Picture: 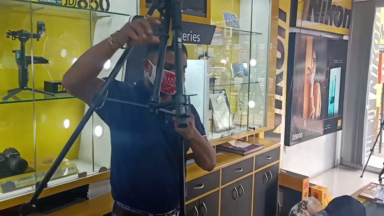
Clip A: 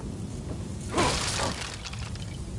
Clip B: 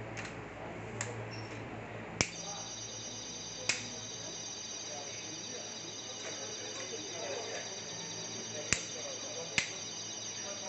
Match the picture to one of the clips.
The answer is B